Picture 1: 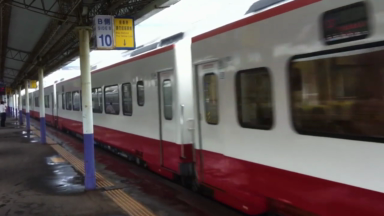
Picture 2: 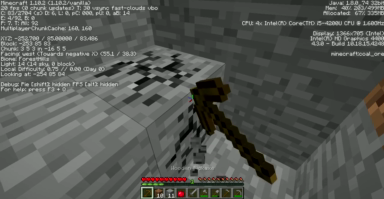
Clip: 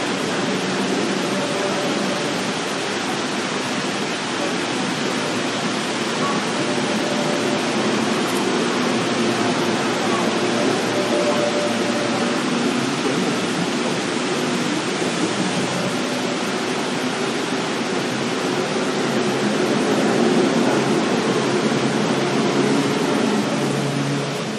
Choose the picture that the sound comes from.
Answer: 1